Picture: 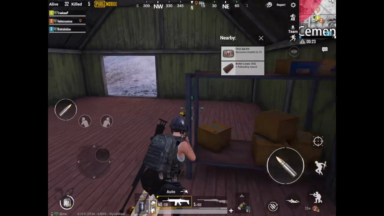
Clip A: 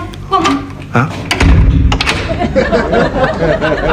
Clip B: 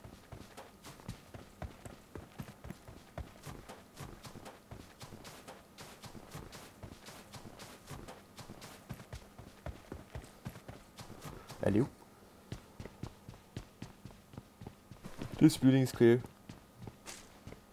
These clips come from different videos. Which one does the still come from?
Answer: B